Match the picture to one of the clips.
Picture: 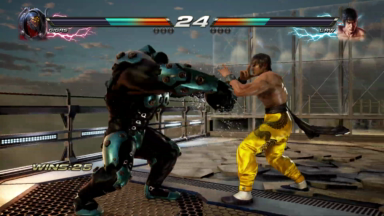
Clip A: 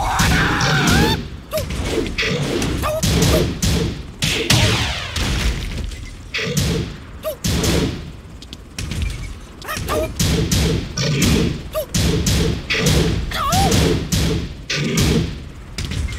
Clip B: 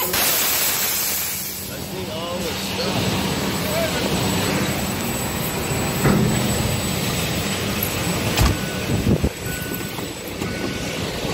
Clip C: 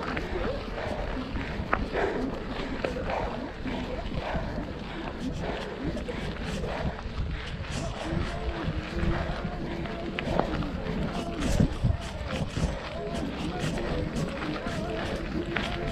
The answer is A